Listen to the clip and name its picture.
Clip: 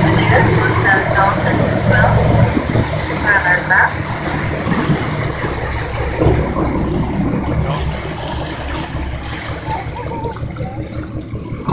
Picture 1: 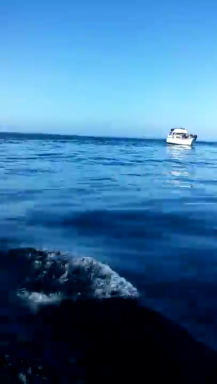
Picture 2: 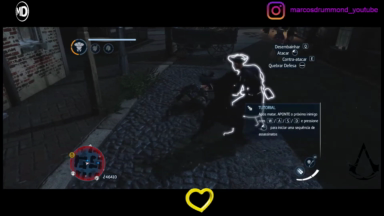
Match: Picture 1